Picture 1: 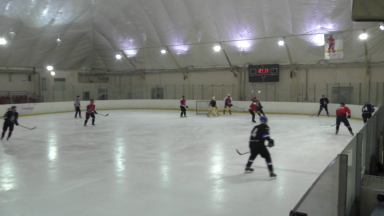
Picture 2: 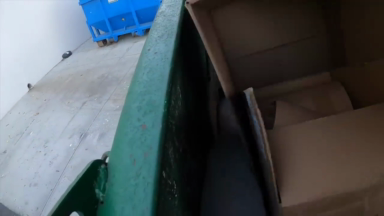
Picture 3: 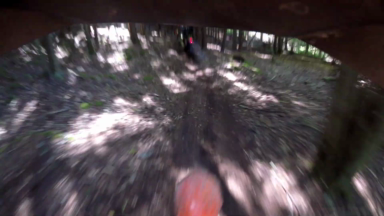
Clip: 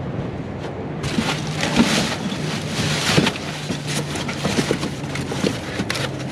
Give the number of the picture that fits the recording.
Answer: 2